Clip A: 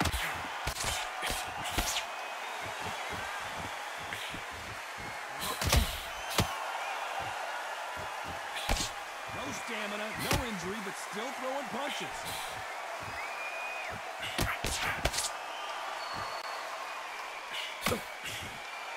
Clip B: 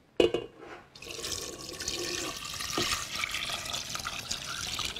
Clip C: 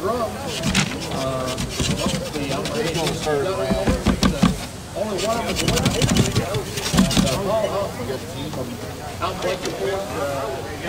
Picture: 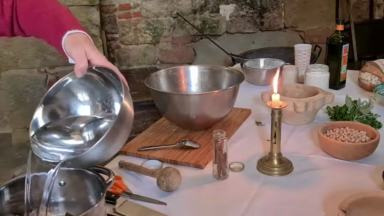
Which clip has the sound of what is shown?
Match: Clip B